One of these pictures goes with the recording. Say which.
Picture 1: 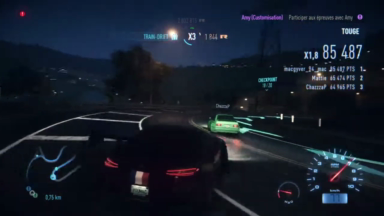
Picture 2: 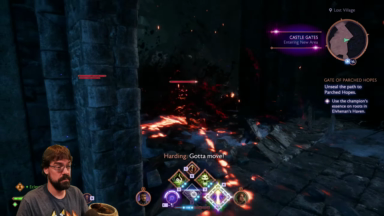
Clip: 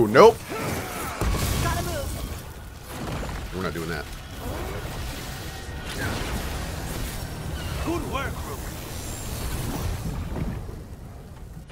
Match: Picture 2